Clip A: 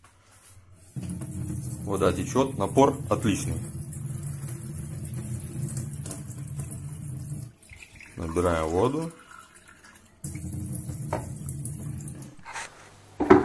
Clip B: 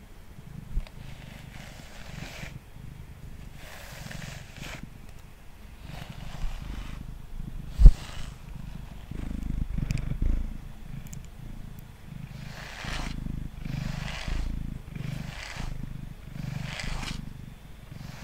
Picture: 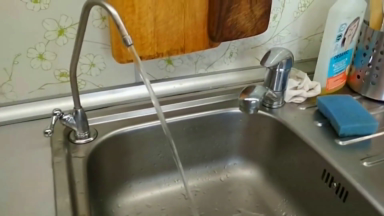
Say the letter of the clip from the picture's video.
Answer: A